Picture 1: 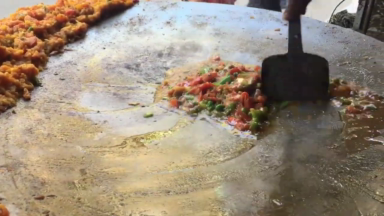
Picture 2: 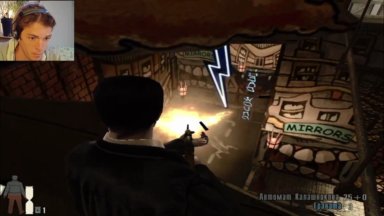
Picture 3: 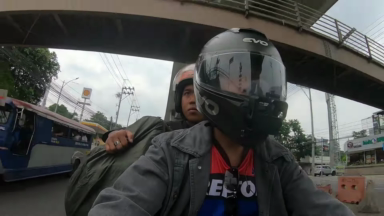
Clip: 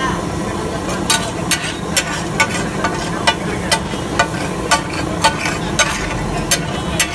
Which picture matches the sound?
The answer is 1